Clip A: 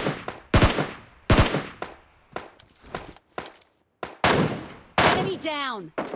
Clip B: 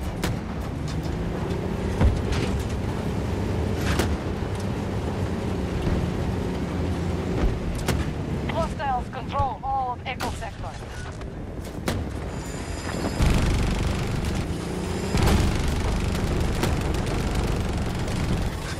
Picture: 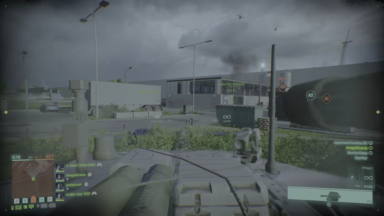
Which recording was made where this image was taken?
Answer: B